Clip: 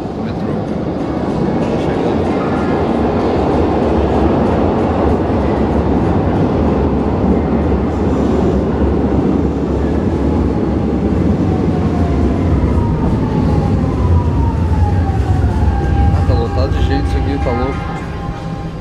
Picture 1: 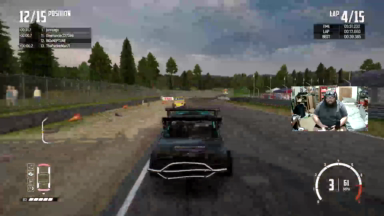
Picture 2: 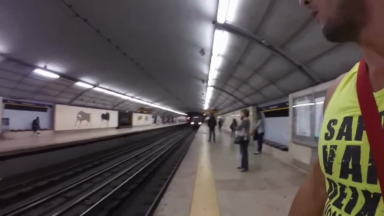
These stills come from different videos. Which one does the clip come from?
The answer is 2